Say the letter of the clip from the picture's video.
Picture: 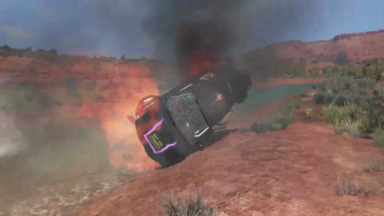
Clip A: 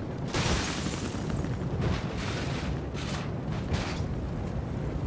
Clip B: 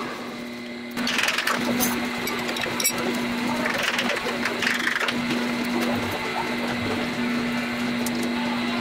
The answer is A